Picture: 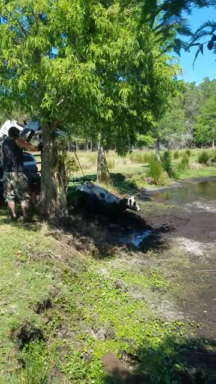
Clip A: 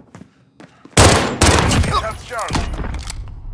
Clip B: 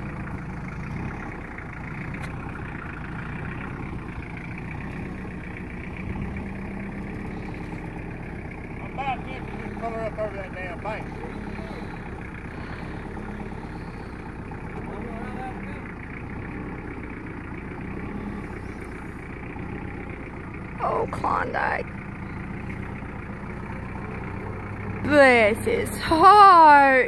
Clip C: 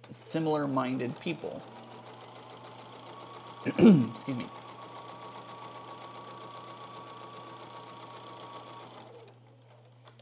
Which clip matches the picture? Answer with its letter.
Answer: B